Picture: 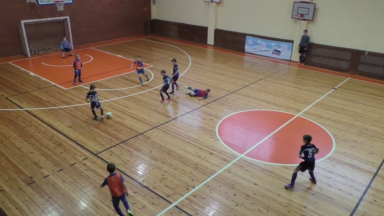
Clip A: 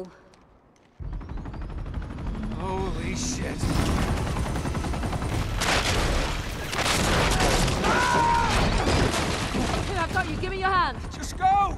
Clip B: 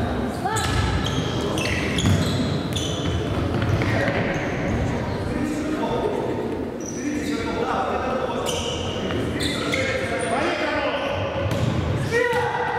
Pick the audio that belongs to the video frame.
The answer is B